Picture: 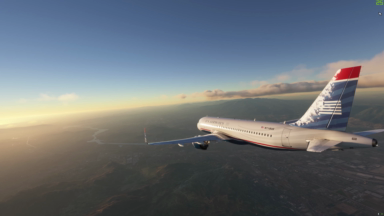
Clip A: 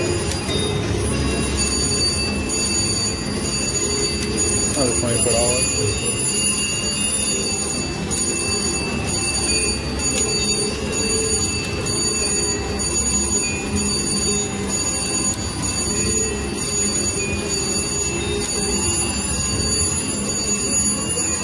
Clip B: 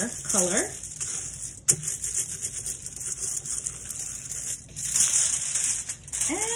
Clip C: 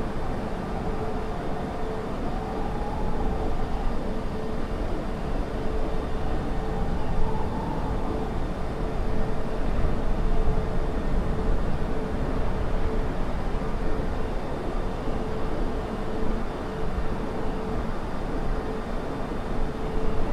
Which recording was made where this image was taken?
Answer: C